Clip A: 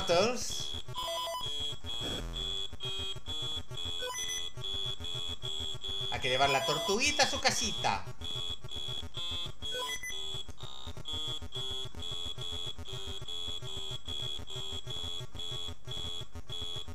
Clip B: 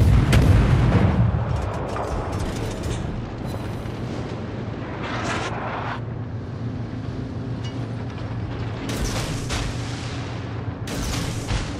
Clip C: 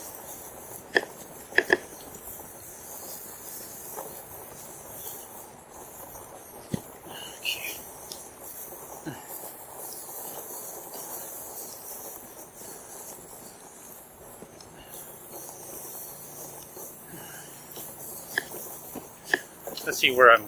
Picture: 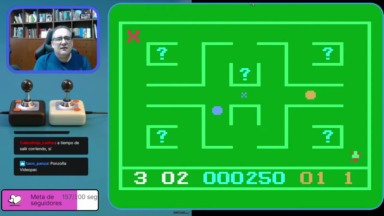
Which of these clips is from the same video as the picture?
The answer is A